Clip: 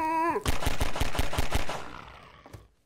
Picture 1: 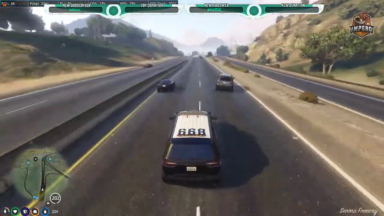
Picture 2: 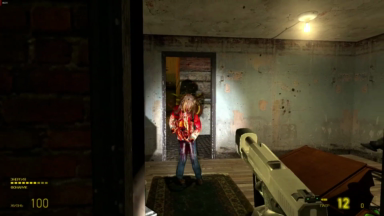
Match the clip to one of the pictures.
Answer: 2